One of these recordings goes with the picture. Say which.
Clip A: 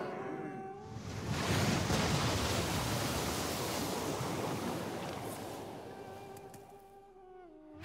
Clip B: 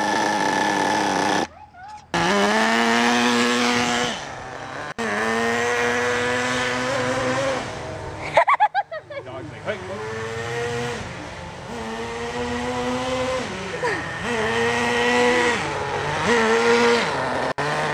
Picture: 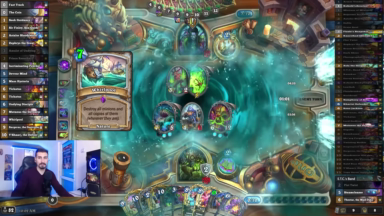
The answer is A